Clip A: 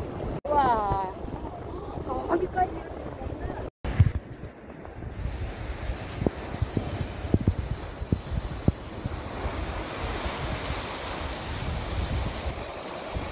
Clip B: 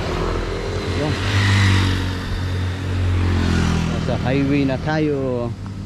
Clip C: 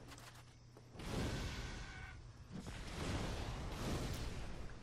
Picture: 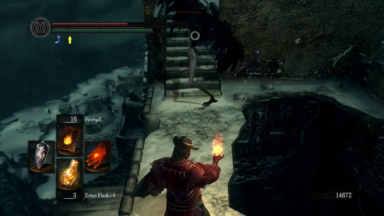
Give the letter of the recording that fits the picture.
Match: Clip C